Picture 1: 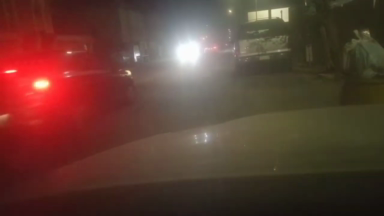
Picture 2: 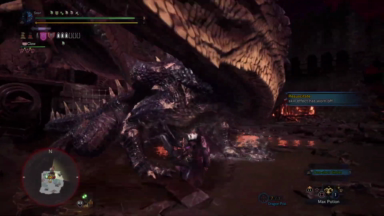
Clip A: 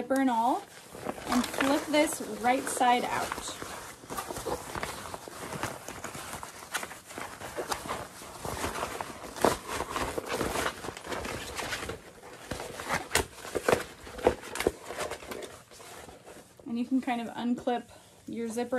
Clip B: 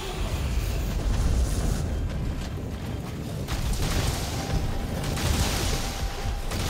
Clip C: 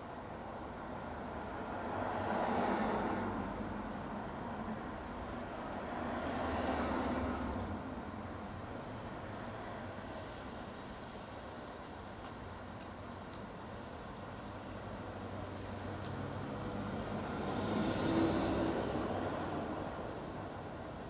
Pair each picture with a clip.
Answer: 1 C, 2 B